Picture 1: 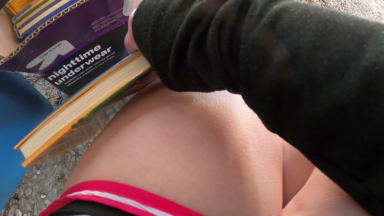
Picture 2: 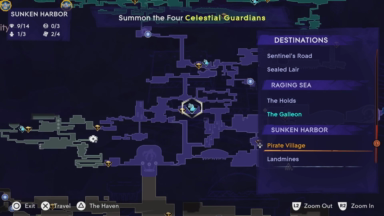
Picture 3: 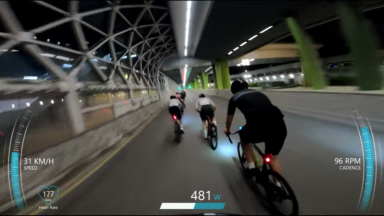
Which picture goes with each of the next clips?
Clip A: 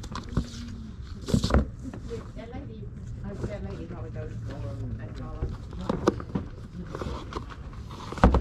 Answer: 1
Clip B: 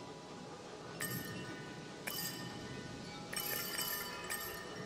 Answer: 2